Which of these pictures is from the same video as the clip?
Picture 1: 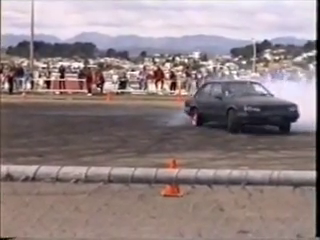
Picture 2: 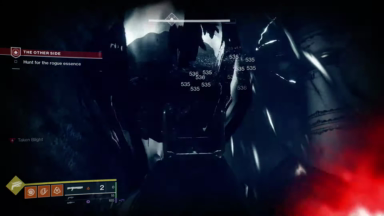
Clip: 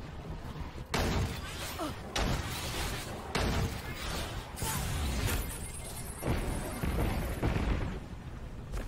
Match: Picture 2